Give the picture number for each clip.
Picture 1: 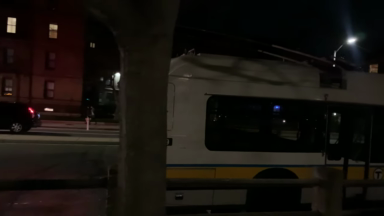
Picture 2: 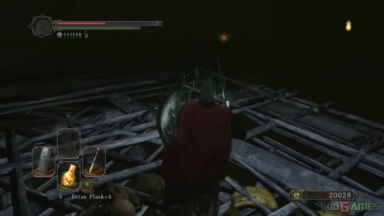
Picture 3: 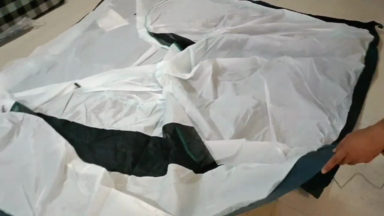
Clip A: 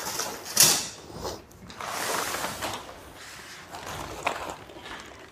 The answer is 3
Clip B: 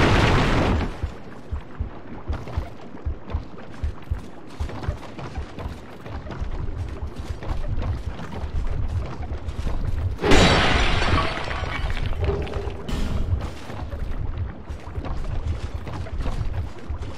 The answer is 2